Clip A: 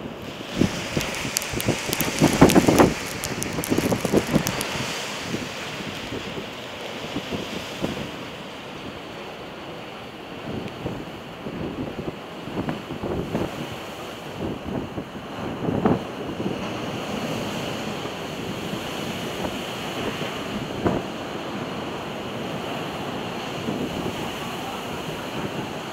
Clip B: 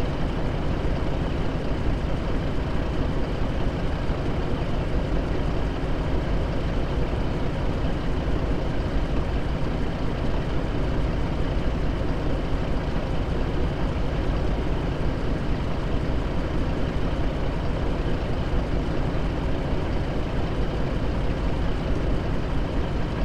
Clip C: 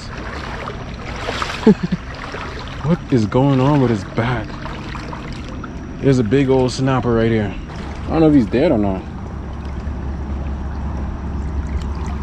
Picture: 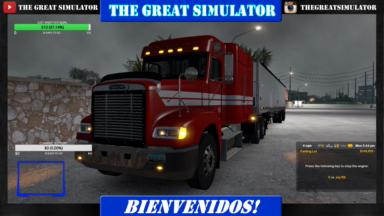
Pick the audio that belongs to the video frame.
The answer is B